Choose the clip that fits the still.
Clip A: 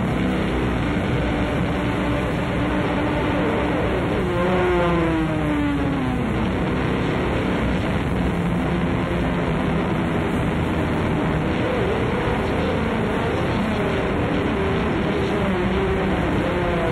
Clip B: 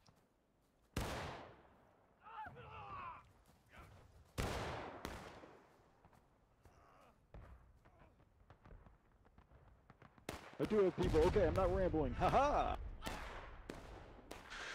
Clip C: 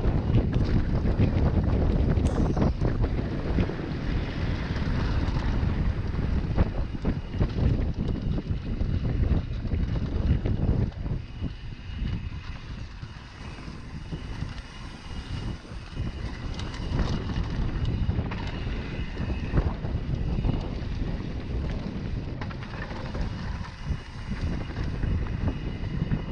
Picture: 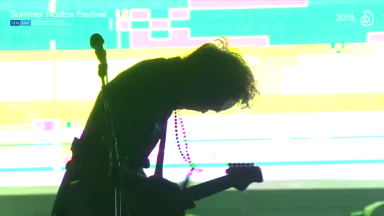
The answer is A